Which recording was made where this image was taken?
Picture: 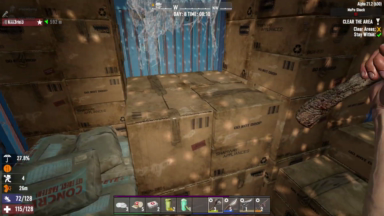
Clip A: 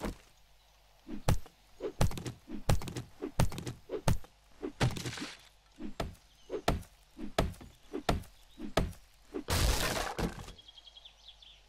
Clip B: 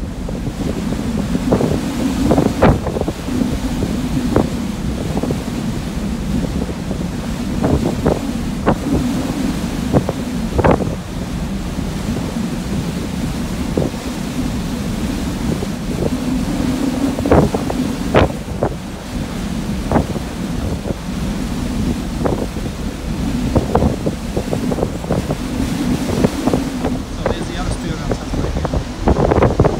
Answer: A